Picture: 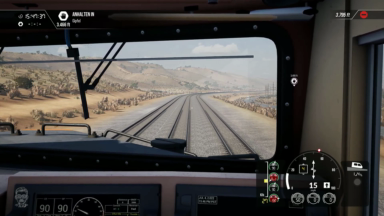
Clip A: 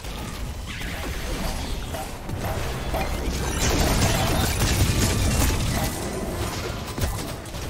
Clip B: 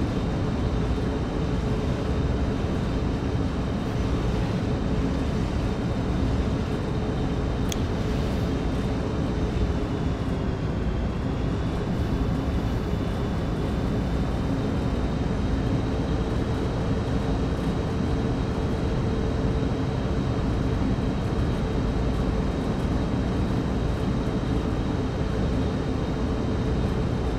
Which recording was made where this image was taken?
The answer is B